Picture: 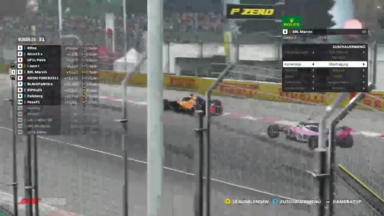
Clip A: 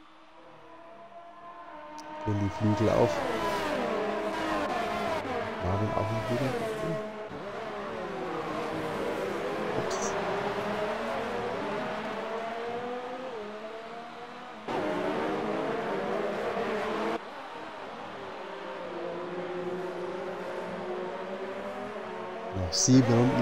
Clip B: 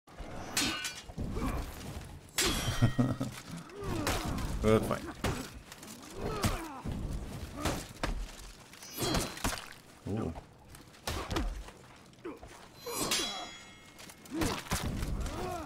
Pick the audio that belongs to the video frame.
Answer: A